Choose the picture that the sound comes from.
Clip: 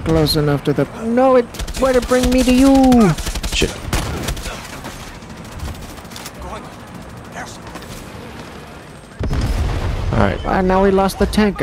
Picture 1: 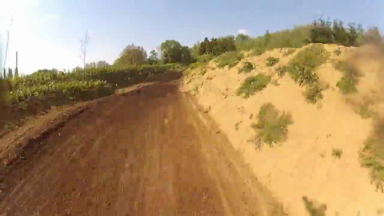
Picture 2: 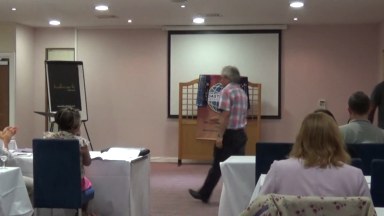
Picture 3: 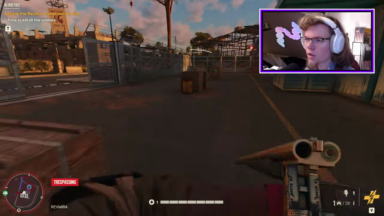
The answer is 3